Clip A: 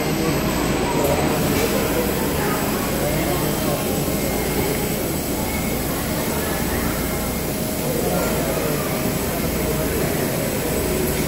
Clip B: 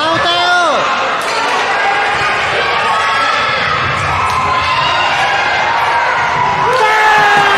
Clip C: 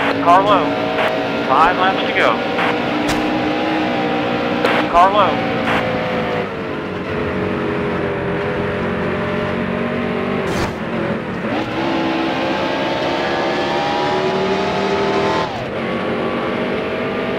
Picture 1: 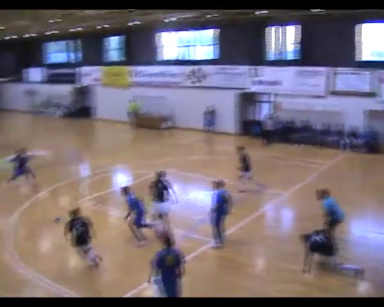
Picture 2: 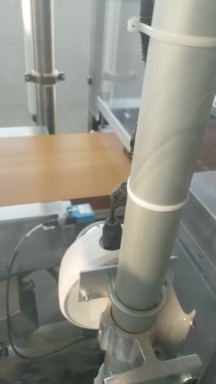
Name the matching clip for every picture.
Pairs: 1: B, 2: A